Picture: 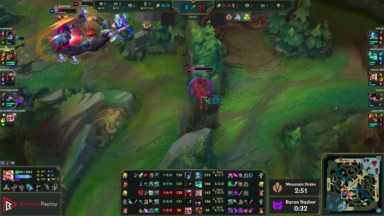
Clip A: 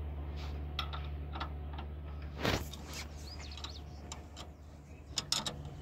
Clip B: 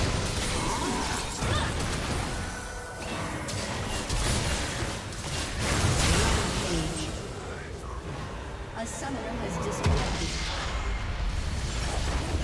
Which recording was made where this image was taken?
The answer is B